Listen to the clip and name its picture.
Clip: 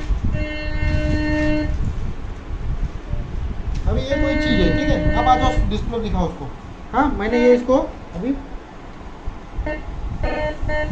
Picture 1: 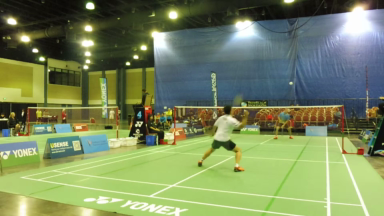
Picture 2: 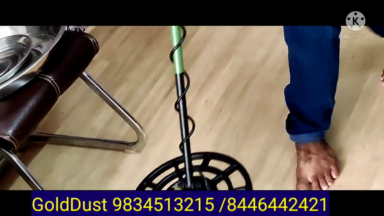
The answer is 2